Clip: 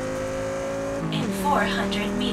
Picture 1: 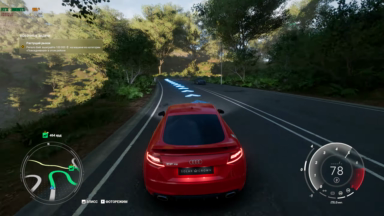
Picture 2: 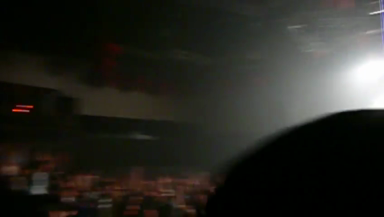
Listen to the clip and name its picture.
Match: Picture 1